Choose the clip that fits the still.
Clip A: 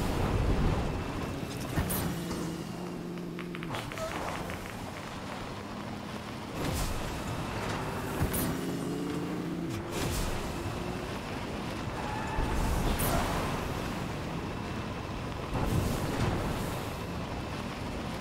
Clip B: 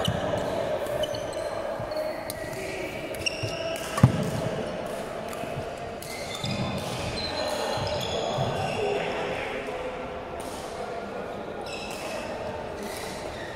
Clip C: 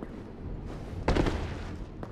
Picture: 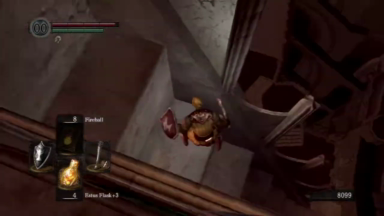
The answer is C